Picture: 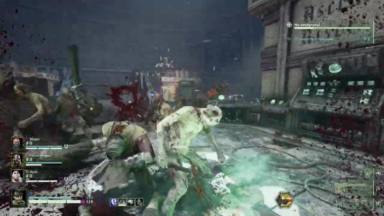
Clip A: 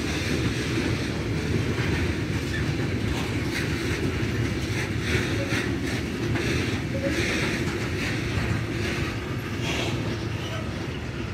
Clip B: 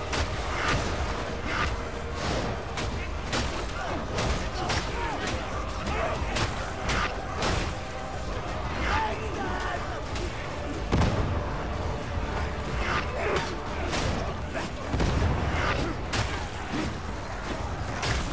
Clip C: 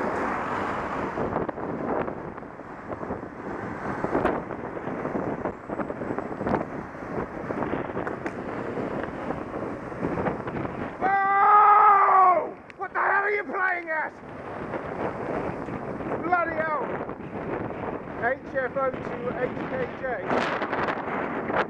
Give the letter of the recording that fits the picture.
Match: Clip B